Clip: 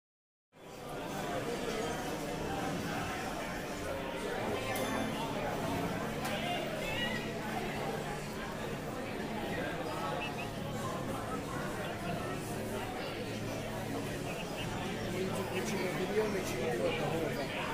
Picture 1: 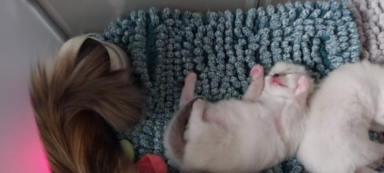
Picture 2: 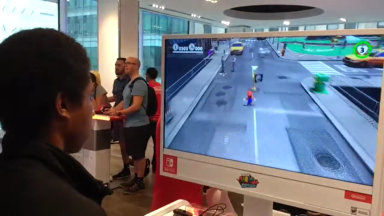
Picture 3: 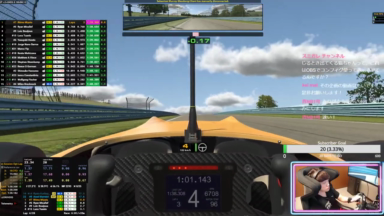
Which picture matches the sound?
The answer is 2